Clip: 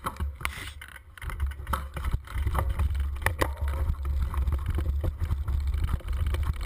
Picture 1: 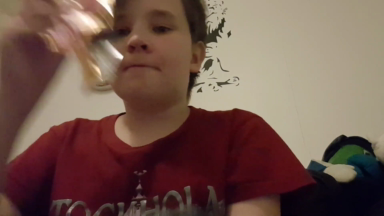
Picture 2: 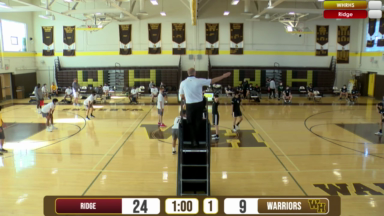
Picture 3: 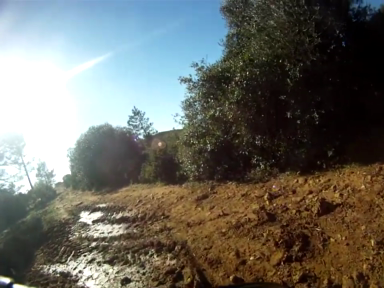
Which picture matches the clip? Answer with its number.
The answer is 3